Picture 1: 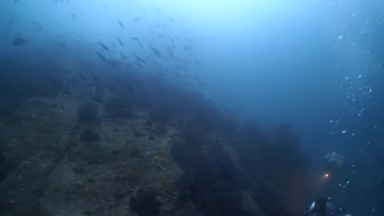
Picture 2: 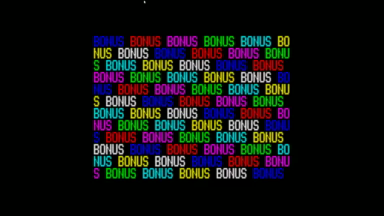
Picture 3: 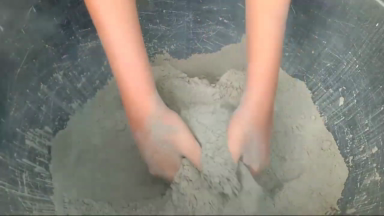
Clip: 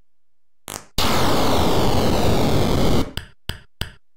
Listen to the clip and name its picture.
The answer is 2